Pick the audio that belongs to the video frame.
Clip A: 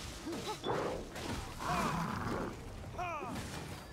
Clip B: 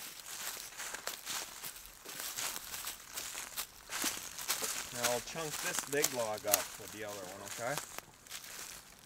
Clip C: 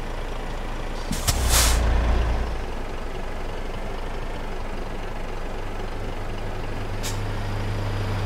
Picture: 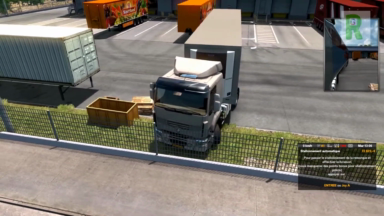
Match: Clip C